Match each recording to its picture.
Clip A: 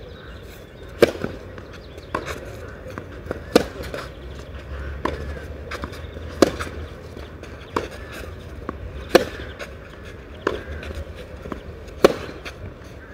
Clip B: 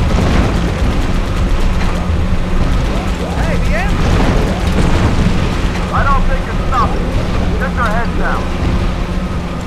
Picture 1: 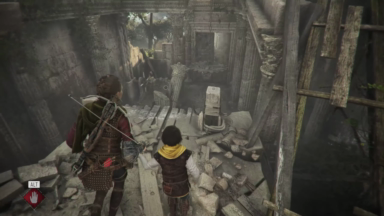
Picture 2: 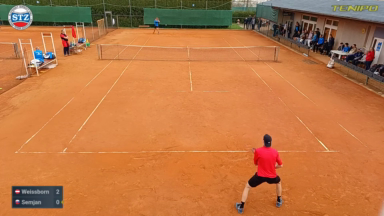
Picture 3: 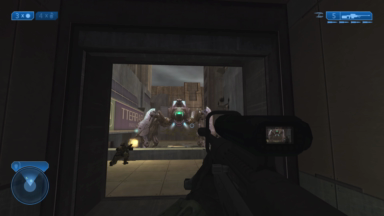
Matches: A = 2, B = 3